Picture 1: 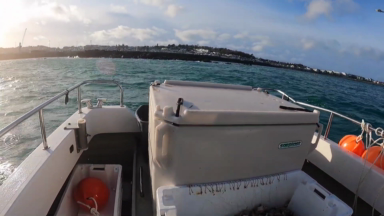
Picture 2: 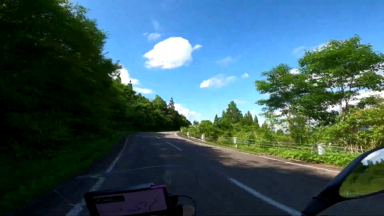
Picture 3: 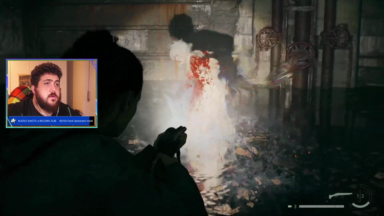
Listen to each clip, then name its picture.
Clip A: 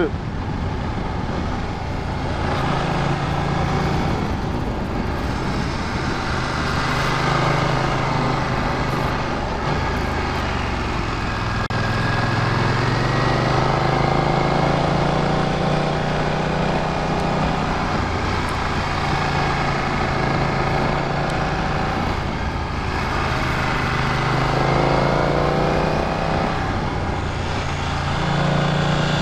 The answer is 2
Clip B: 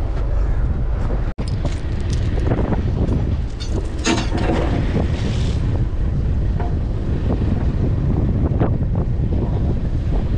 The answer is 1